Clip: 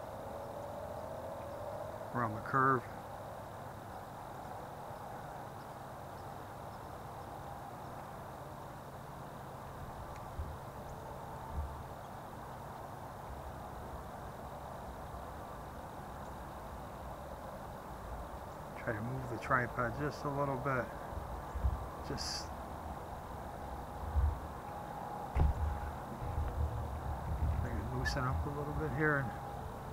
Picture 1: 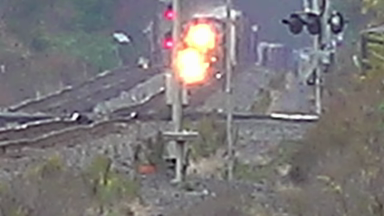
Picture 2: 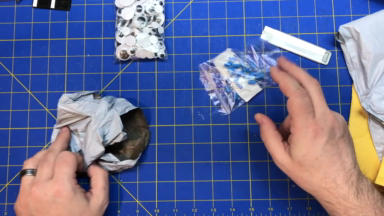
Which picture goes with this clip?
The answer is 1